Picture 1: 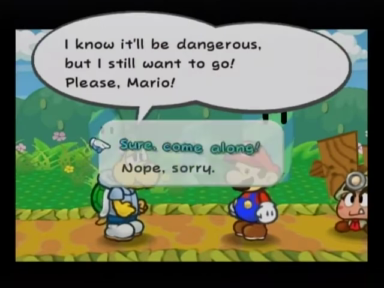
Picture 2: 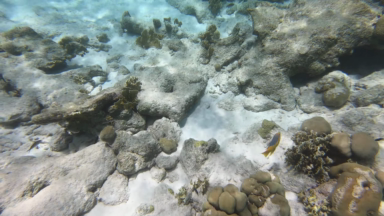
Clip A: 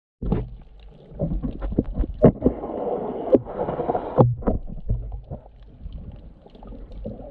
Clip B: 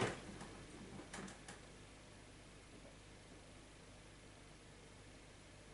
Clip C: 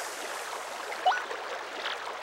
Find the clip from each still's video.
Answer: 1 C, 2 A